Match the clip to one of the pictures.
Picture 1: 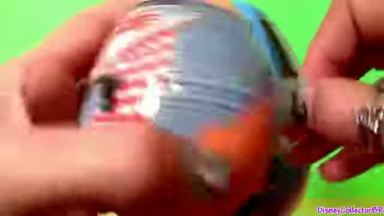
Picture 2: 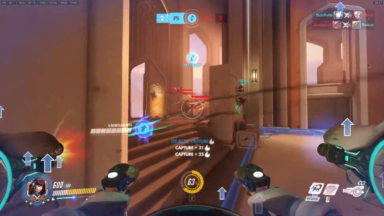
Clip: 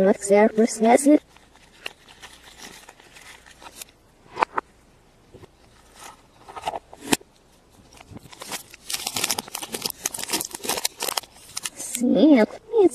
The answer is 1